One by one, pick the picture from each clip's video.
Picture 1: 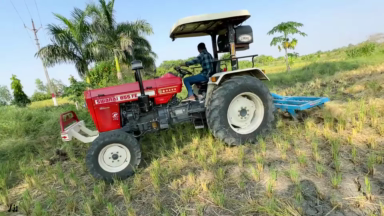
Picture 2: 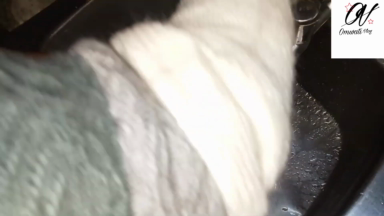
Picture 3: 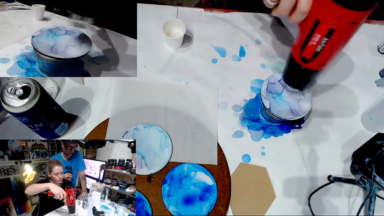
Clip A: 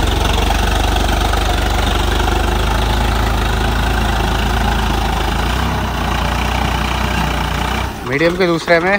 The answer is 1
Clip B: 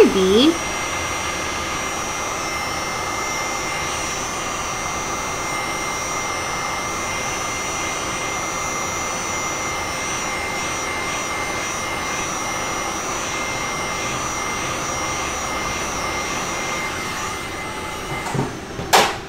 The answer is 3